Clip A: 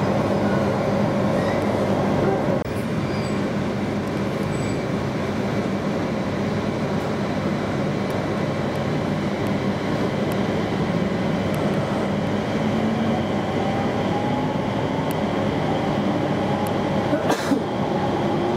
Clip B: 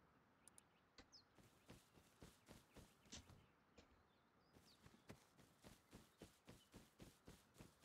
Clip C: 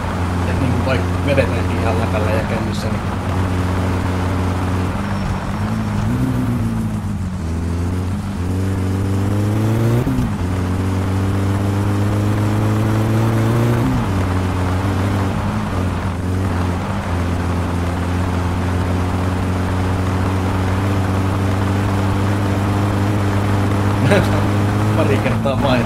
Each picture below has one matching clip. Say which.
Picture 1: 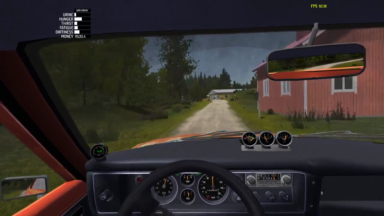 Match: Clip C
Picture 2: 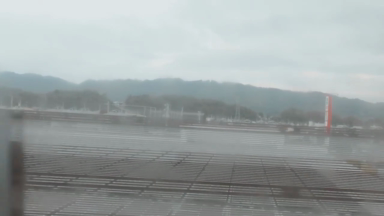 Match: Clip A